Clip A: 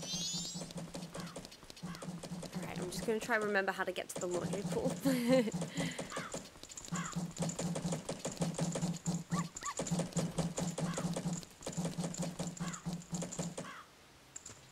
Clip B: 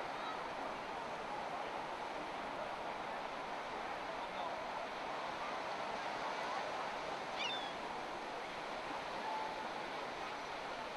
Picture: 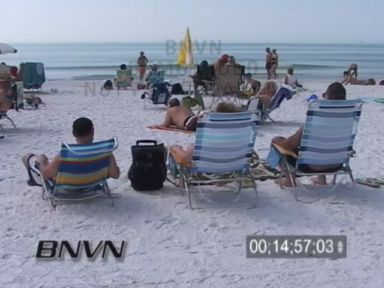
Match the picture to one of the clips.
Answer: B